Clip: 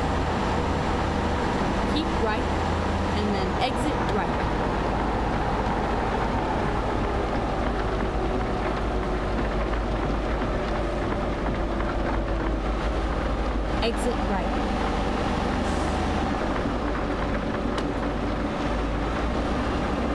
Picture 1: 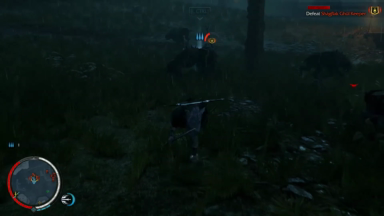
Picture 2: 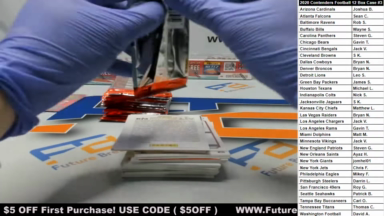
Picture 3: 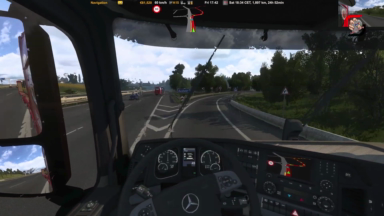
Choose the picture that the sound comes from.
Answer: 3